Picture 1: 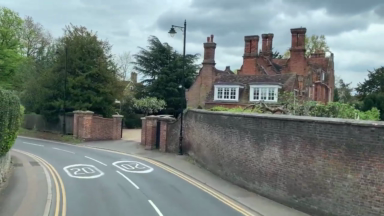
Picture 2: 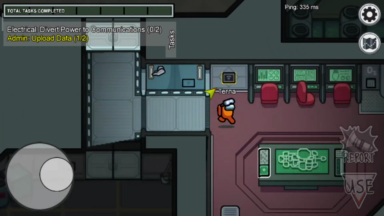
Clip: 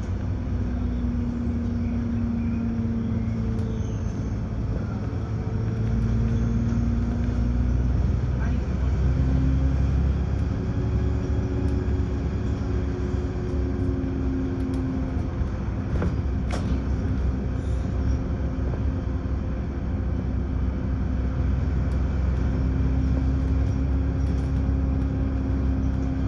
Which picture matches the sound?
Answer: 1